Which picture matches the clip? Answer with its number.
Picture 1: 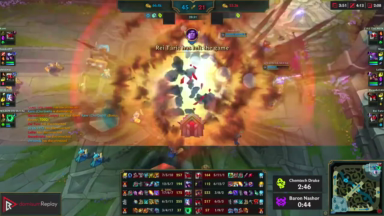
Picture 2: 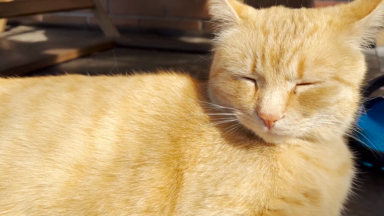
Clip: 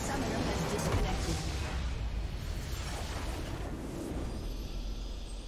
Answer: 1